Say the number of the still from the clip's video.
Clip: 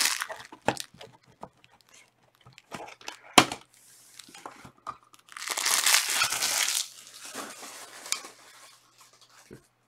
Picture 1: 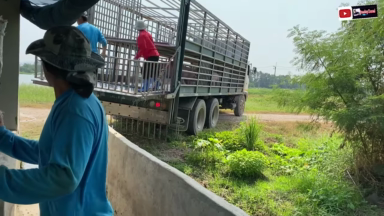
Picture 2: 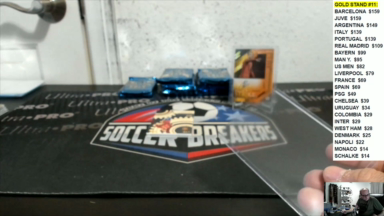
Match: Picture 2